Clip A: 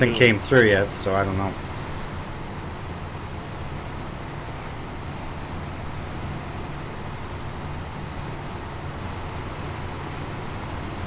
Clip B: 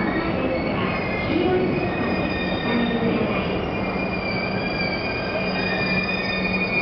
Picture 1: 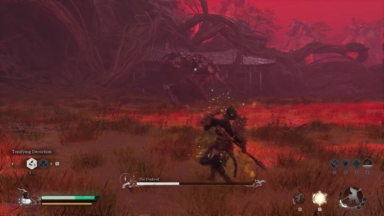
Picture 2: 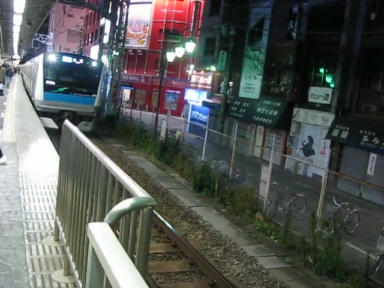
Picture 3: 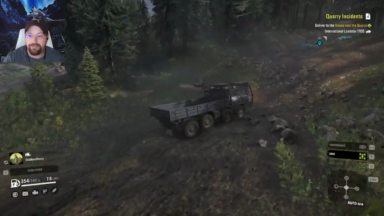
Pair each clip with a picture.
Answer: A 3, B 2